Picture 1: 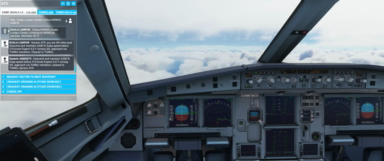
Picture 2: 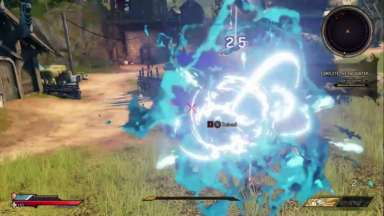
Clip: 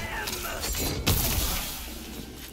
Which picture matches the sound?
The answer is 2